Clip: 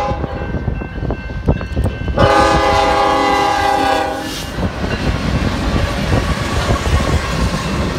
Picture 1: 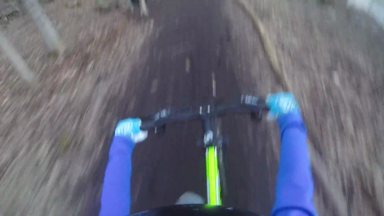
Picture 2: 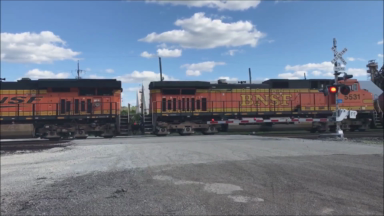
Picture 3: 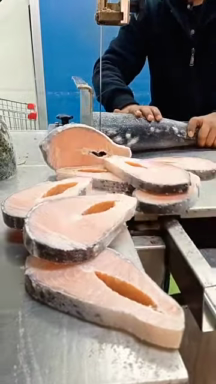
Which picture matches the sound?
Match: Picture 2